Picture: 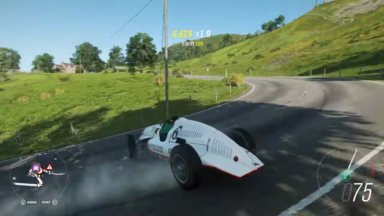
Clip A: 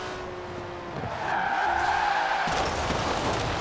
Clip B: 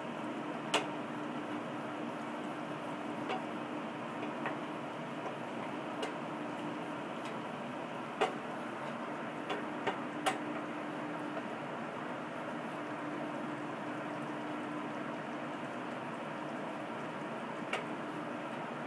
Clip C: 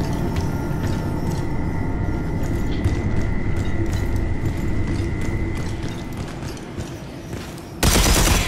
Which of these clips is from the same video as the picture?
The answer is A